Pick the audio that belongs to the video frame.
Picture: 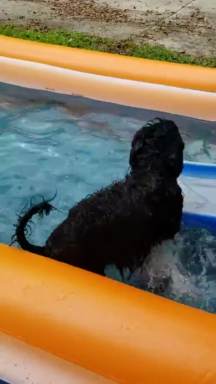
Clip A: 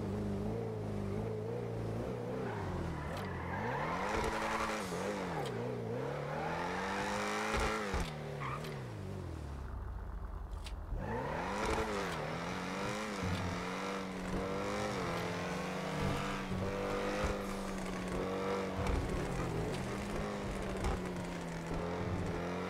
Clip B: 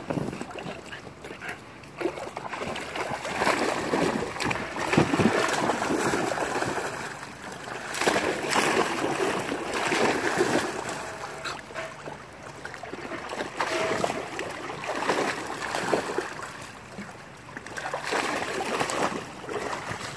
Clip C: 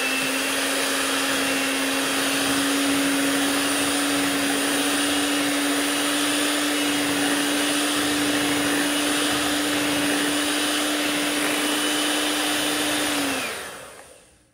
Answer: B